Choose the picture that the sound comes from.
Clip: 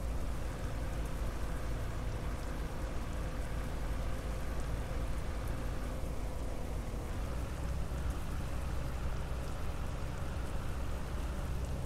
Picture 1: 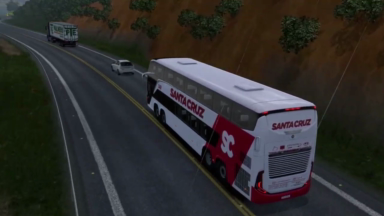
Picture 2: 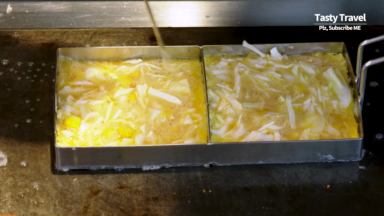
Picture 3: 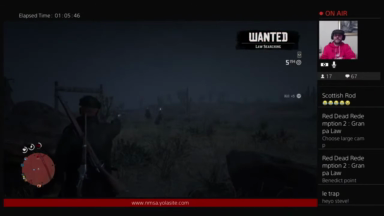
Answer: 1